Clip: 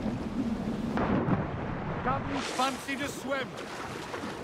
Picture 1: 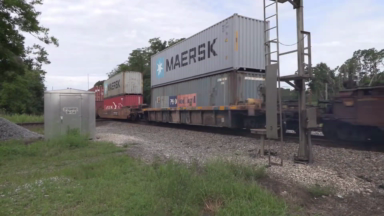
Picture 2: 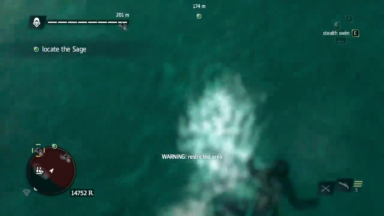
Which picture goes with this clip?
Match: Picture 2